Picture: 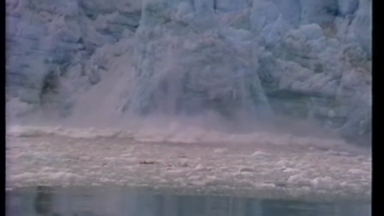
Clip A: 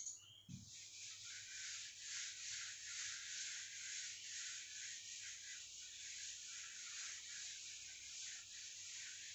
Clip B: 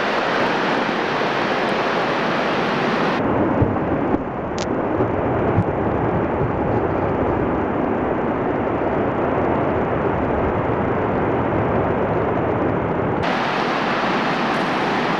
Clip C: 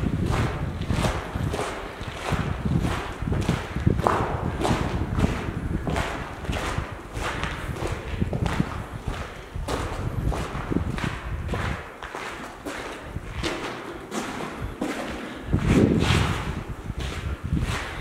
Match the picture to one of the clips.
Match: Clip B